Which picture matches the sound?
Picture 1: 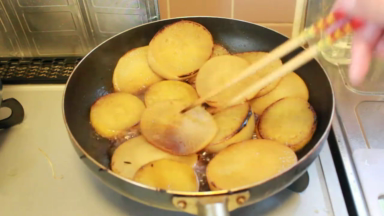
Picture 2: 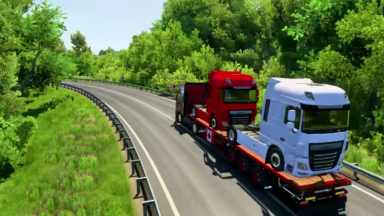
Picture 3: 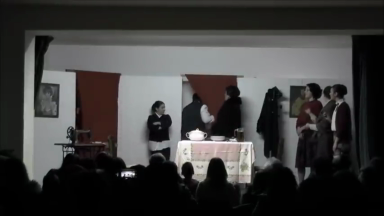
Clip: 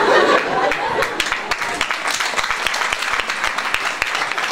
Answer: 3